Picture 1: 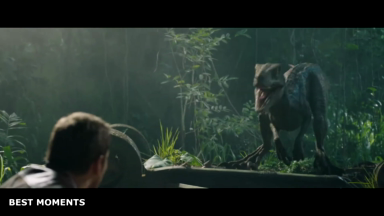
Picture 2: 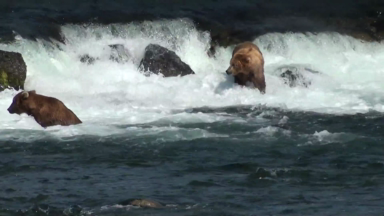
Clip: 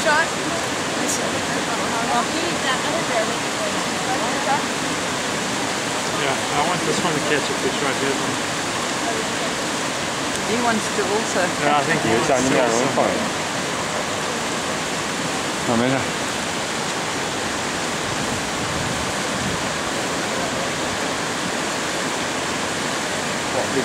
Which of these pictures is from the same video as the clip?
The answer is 2